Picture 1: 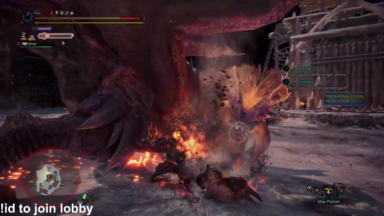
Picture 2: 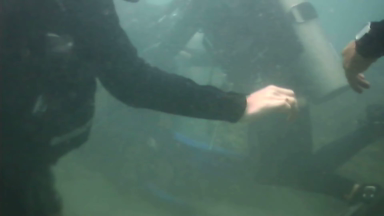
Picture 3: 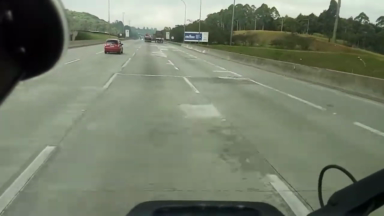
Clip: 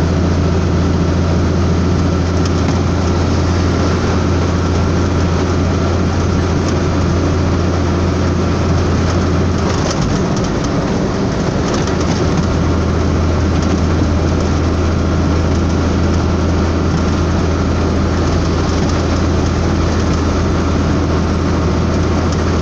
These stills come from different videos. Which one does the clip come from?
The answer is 3